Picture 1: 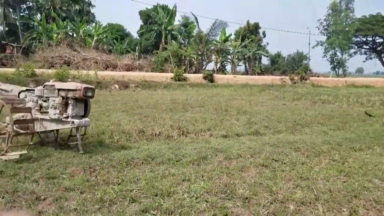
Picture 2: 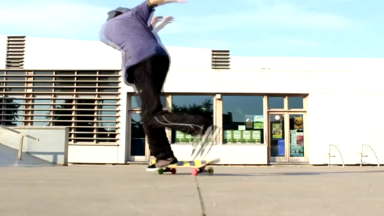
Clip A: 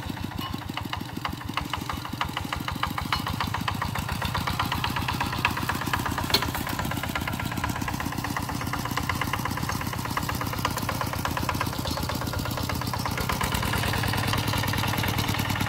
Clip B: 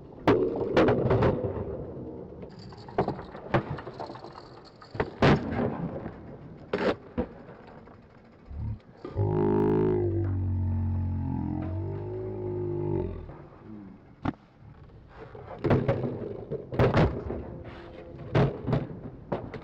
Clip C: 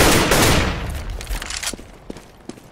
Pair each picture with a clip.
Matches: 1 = A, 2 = B